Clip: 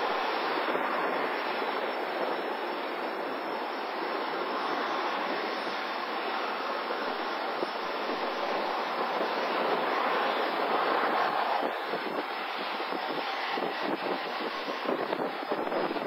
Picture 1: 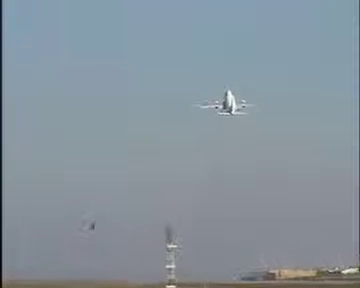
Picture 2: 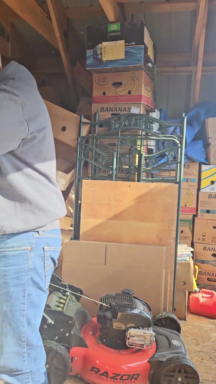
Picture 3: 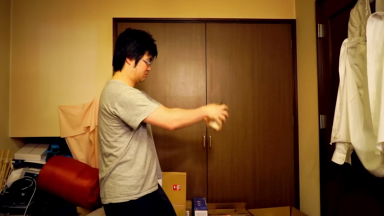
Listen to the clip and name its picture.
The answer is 1